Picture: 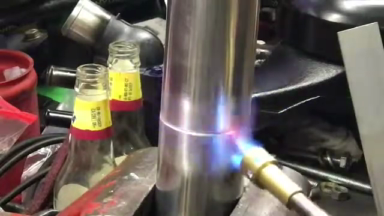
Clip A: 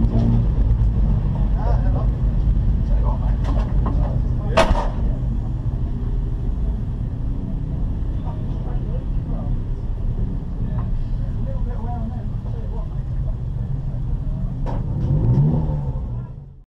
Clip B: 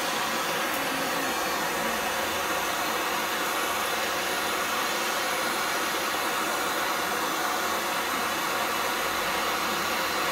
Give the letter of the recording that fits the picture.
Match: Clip B